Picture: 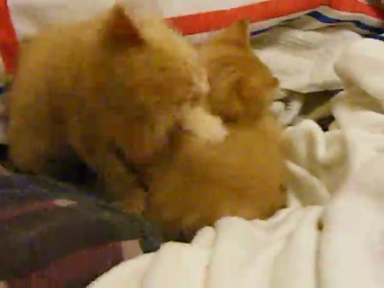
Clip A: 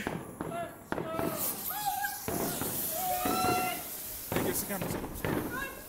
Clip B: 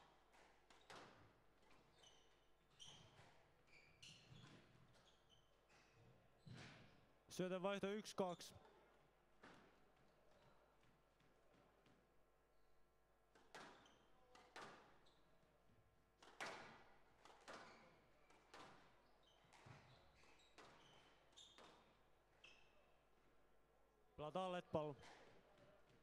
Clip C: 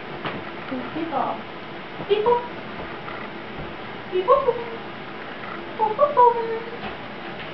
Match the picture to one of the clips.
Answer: C